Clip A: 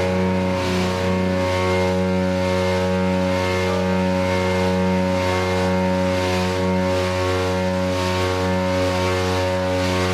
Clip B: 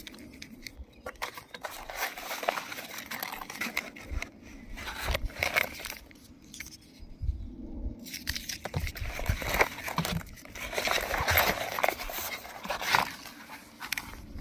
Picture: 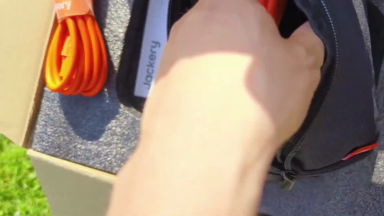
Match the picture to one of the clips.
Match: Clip B